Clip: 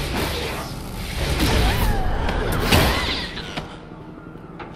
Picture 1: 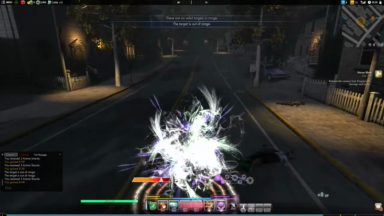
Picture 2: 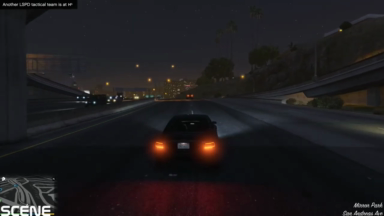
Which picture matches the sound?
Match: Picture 1